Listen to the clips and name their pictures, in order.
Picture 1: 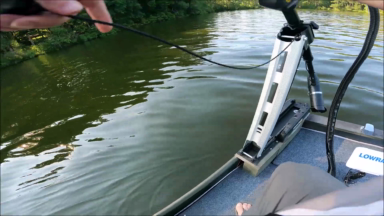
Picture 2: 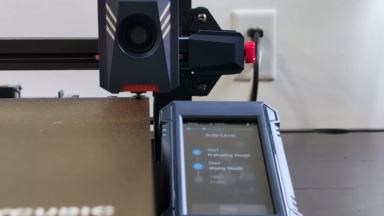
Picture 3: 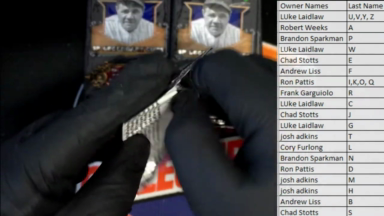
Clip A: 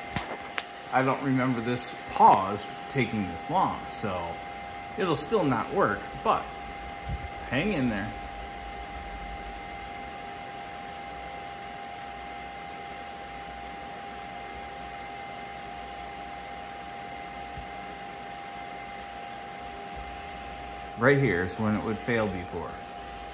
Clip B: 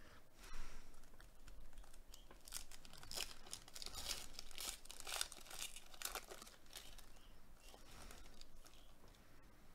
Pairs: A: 2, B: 3